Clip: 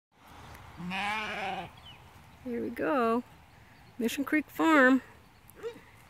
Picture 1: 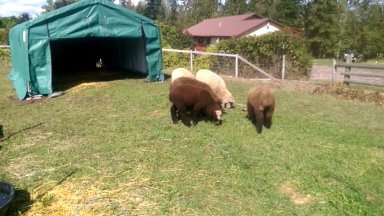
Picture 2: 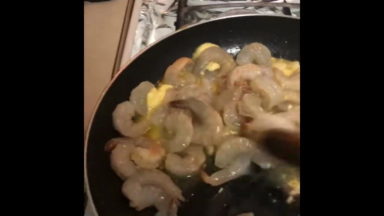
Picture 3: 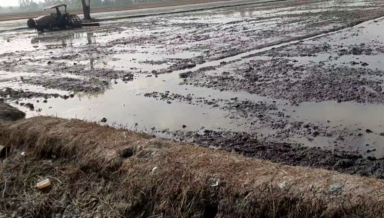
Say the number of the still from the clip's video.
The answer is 1